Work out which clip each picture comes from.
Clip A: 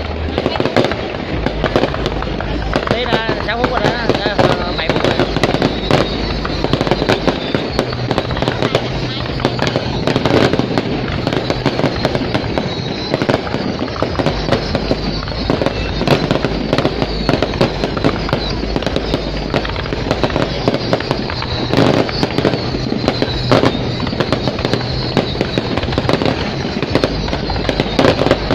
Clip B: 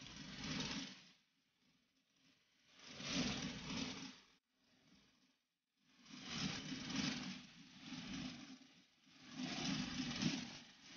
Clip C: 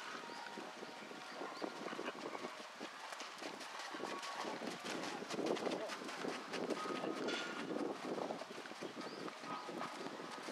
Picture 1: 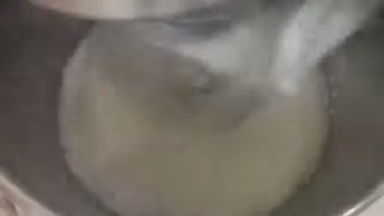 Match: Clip B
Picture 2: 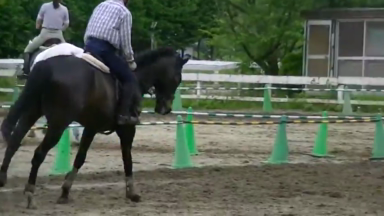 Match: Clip C